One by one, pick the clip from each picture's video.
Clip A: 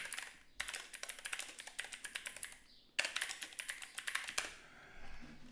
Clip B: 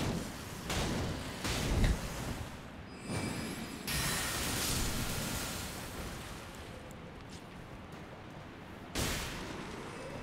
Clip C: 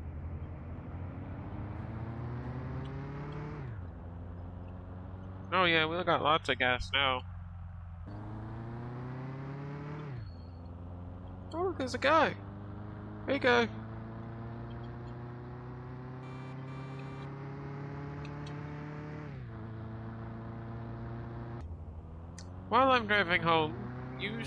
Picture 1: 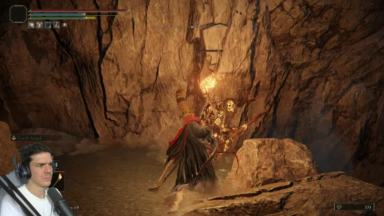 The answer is B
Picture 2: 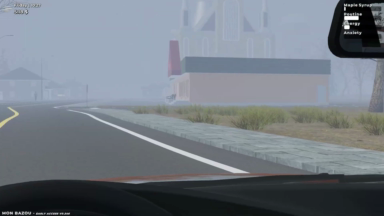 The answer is C